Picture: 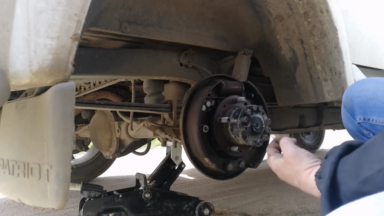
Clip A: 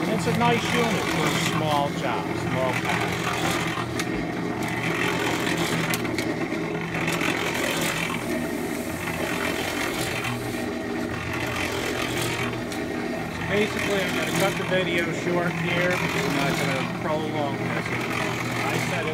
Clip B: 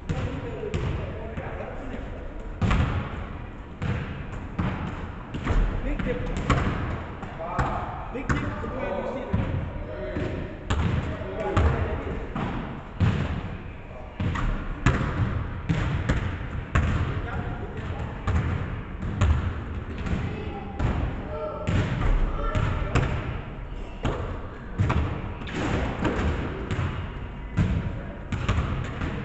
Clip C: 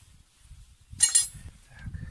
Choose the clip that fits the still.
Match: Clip C